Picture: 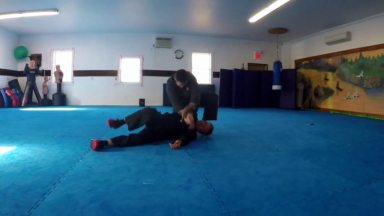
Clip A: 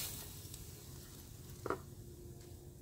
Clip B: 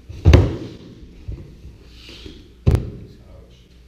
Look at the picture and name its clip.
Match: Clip B